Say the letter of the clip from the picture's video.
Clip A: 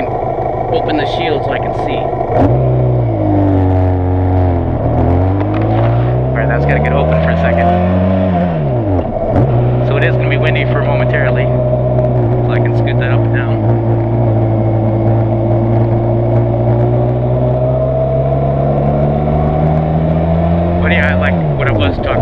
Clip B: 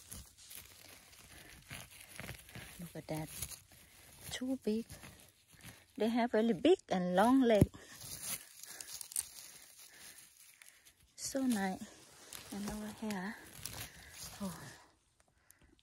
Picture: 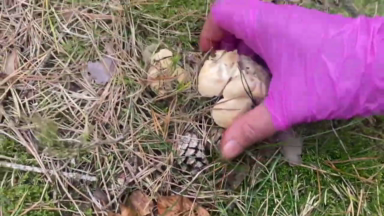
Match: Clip B